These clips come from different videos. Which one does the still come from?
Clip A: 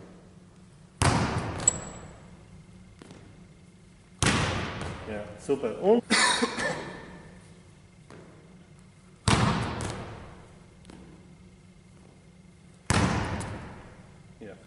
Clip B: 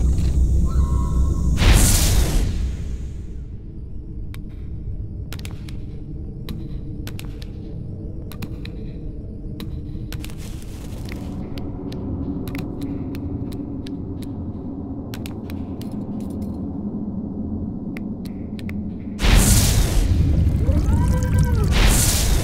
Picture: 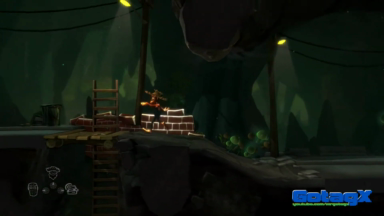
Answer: B